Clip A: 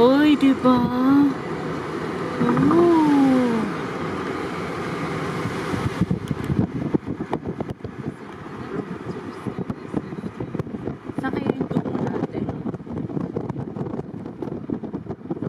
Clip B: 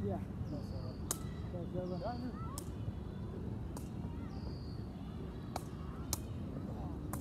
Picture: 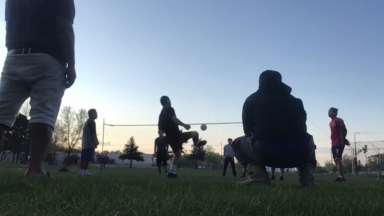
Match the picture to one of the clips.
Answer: B